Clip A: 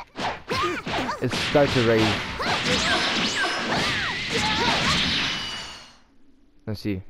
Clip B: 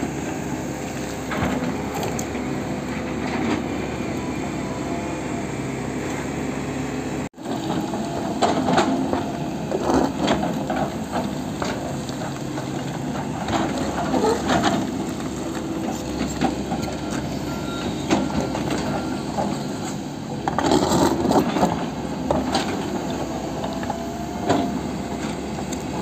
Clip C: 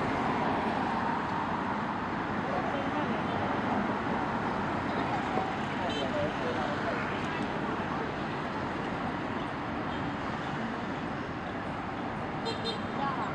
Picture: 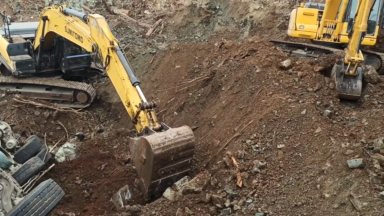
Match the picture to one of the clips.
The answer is B